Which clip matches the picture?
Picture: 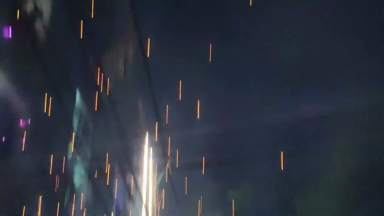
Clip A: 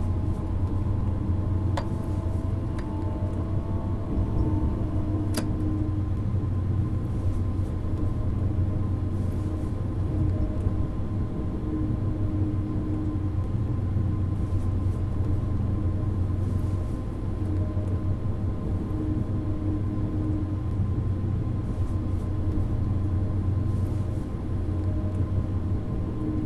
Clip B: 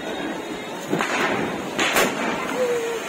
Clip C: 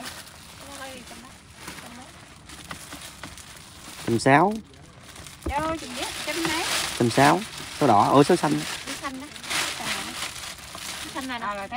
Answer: B